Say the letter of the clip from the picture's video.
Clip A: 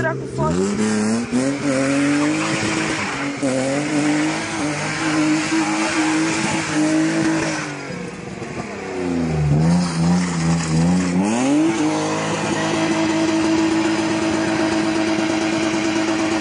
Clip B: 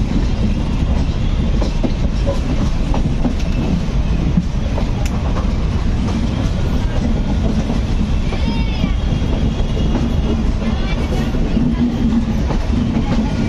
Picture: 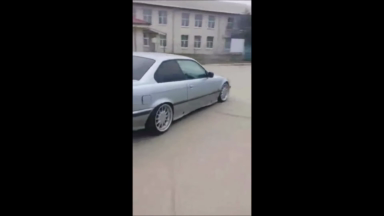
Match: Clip A